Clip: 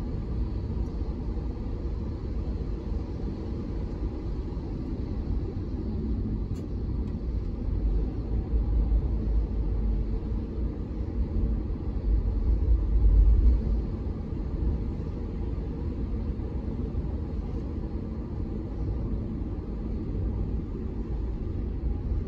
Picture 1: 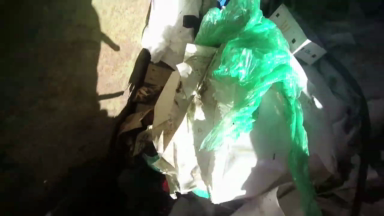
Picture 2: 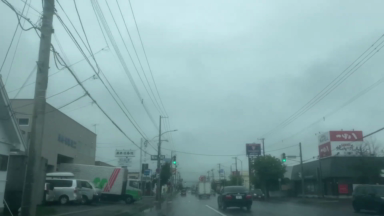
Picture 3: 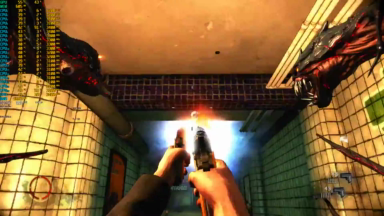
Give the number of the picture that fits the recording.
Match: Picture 2